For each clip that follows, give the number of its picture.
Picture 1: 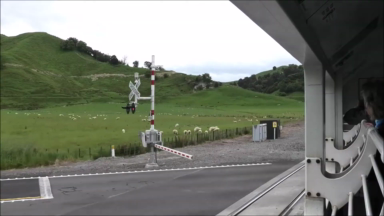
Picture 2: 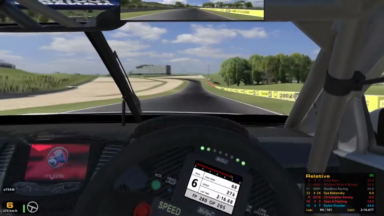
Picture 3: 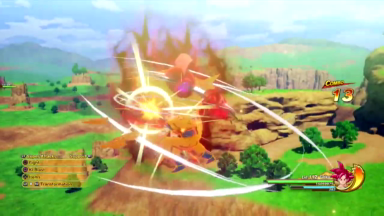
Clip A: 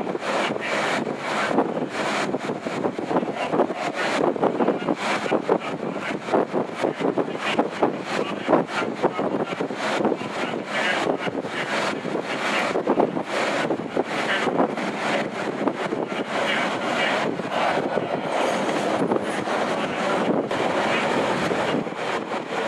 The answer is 1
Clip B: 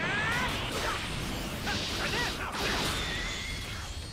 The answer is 3